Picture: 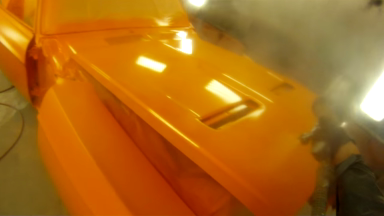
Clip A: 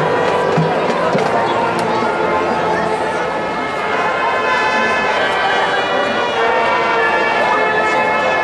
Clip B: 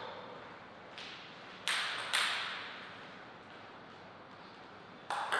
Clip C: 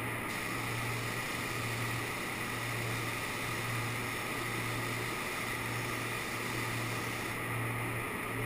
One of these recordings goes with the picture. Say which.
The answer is C